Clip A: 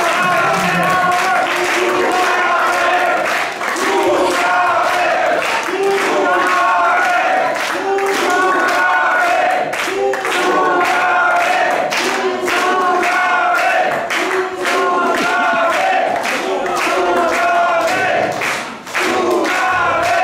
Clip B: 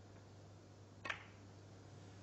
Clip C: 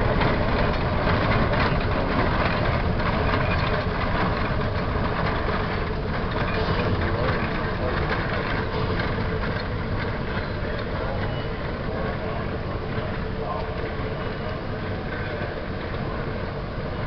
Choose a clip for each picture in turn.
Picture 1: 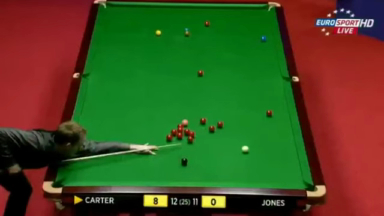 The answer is B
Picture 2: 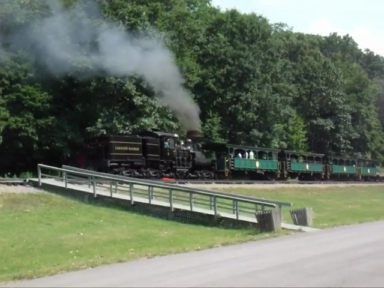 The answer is C